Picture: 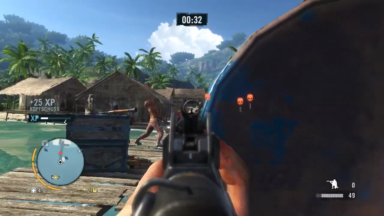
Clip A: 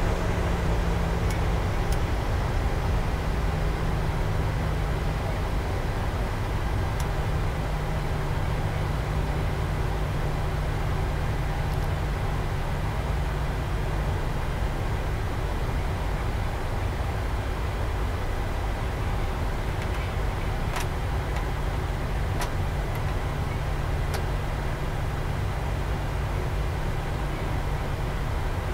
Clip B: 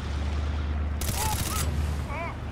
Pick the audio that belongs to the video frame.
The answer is B